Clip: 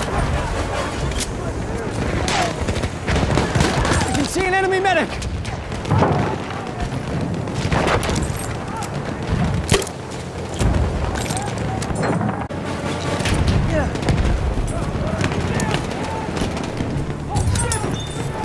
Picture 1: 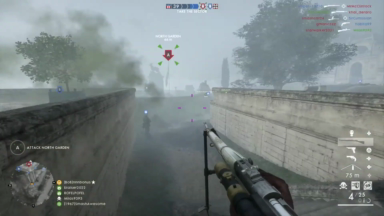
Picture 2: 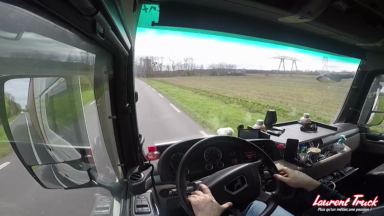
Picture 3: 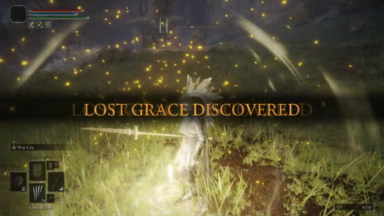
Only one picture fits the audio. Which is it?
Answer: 1